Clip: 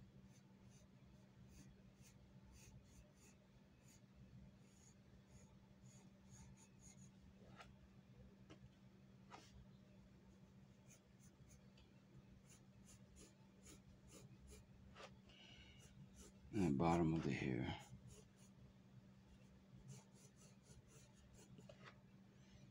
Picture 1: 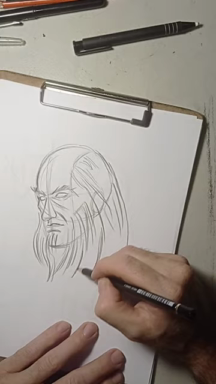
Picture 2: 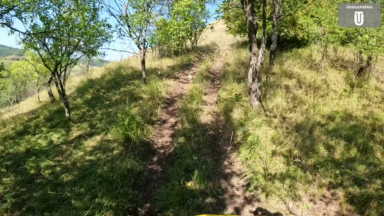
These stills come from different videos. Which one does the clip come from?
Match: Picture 1